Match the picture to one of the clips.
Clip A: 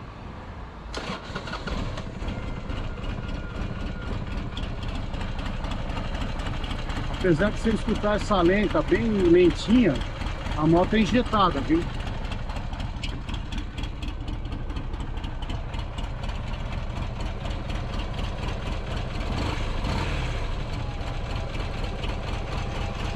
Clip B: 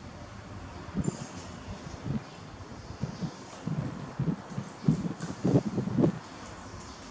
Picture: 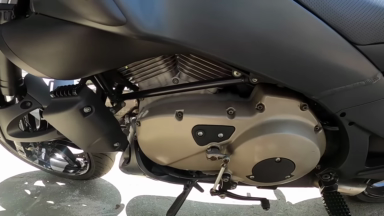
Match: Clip A